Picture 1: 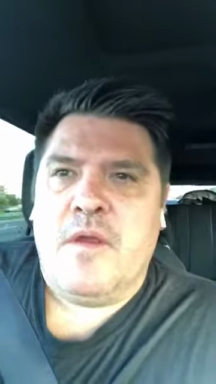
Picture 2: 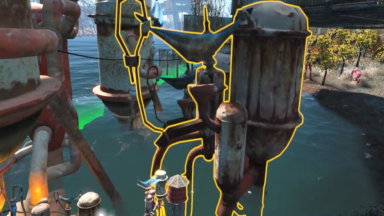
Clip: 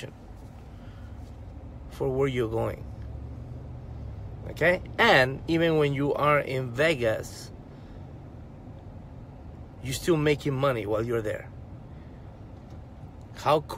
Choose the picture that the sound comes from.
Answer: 1